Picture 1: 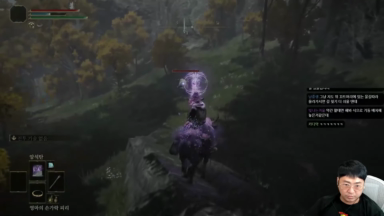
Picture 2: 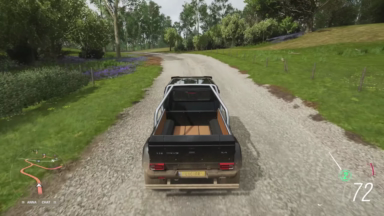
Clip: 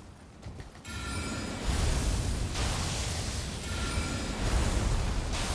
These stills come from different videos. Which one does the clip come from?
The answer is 1